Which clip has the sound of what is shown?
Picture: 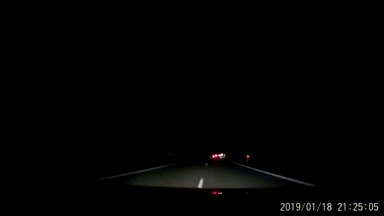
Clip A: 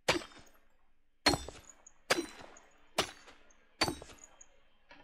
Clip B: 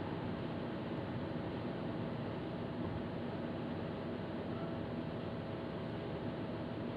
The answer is B